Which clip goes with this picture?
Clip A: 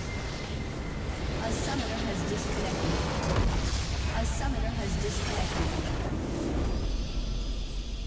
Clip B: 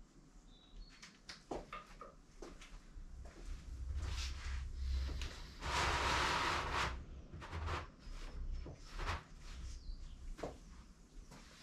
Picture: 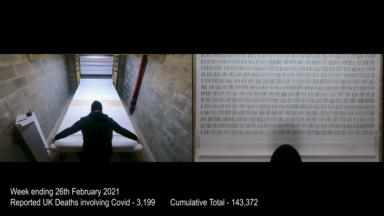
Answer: B